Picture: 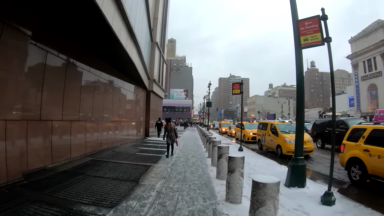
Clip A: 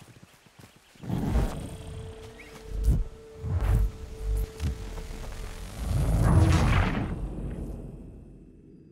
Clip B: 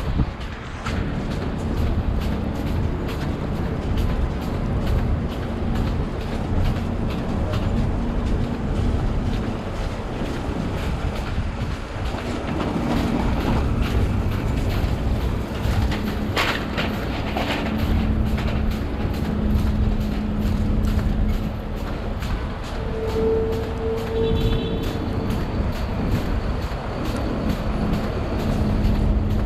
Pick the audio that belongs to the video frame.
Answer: B